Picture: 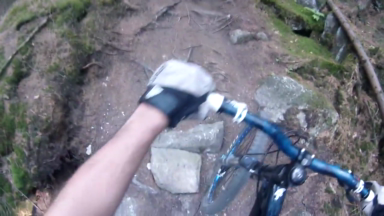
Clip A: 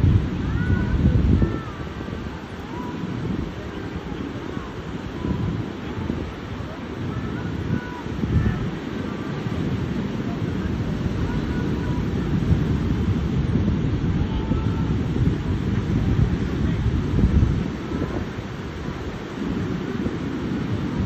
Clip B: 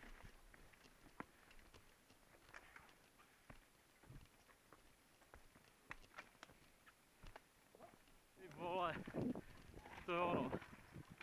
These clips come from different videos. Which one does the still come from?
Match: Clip B